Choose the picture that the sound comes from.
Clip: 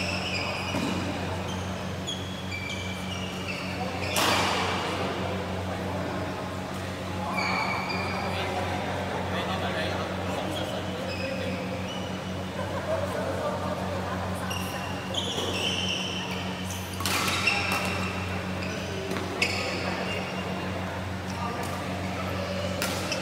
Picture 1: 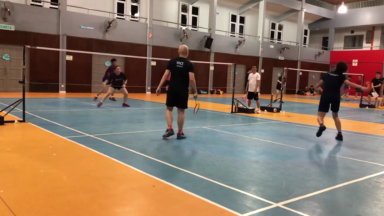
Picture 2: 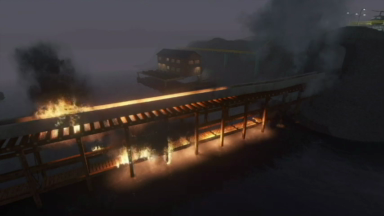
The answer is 1